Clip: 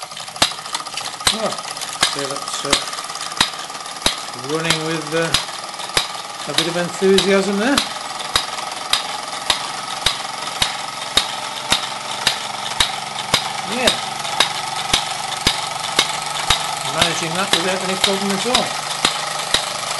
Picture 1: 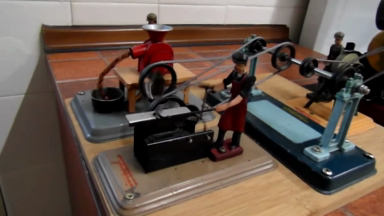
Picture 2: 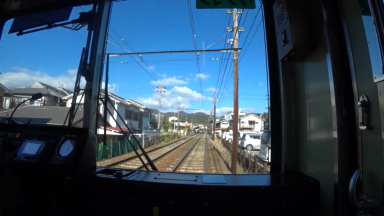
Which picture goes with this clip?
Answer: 1